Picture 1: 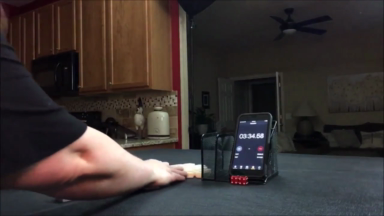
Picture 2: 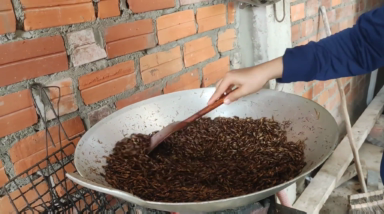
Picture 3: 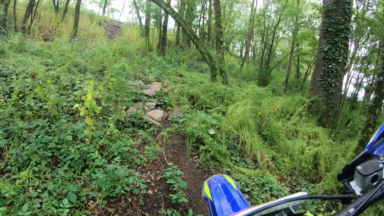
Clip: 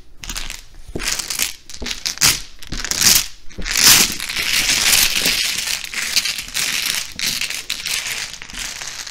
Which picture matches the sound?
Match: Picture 1